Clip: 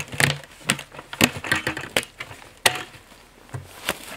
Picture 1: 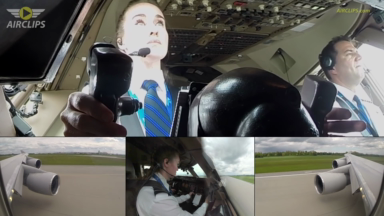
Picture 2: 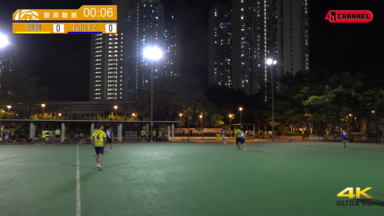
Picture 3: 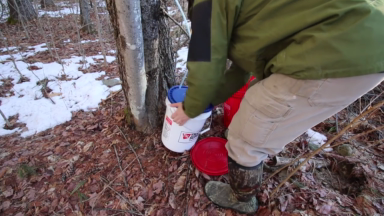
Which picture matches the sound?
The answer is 3